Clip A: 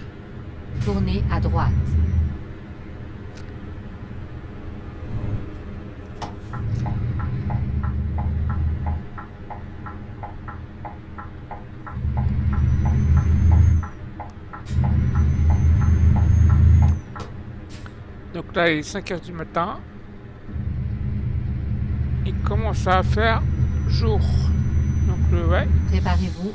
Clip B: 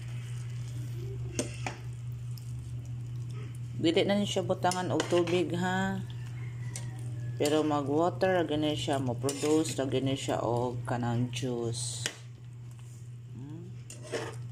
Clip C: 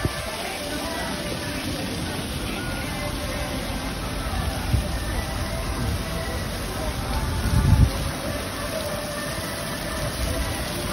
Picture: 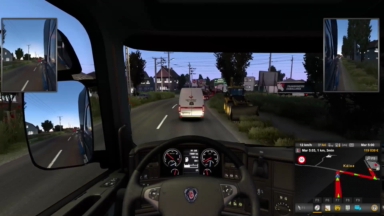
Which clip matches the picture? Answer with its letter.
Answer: A